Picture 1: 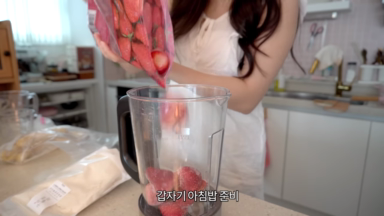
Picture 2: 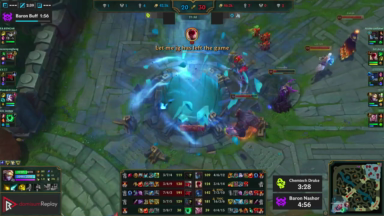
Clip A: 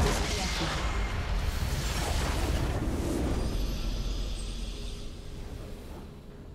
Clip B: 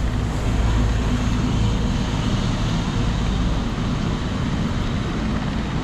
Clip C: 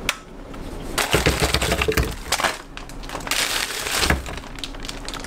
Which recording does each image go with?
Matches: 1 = C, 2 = A